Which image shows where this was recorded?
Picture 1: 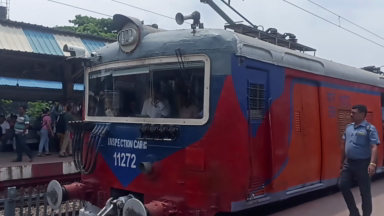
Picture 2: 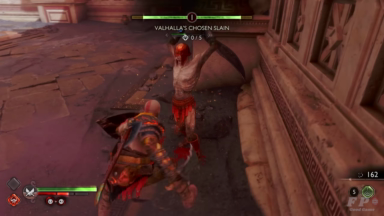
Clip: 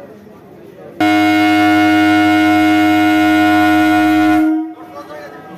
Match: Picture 1